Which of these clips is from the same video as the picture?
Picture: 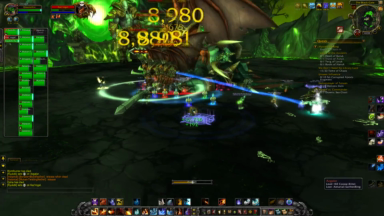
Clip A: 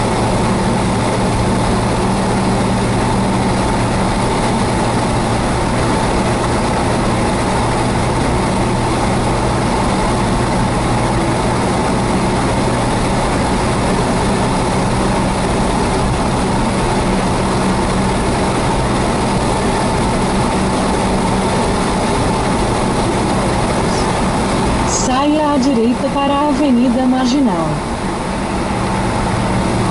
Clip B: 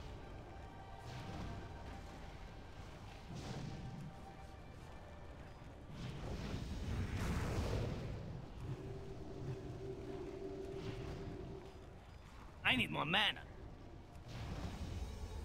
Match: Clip B